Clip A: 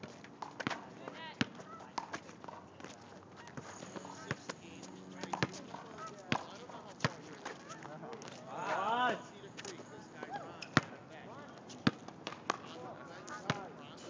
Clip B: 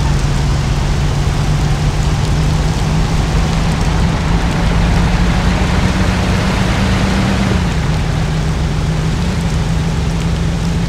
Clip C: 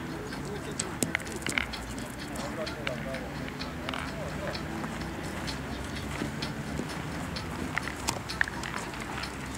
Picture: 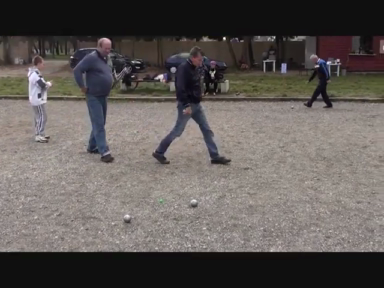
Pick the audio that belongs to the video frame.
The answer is C